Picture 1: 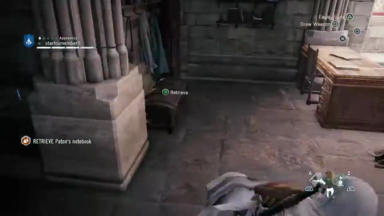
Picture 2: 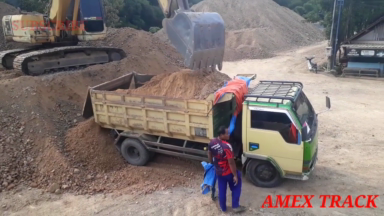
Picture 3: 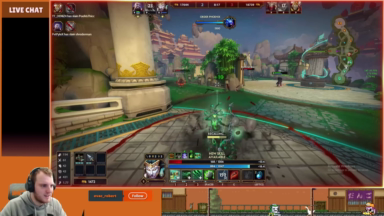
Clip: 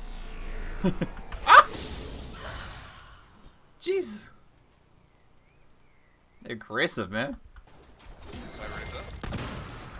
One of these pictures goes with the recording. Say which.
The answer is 3